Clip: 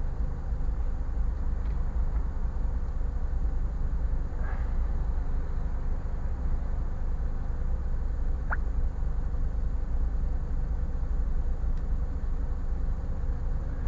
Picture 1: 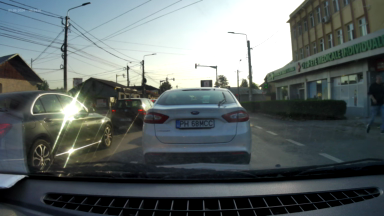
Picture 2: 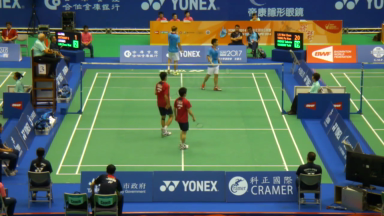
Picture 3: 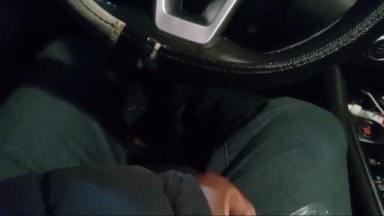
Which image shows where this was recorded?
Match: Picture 1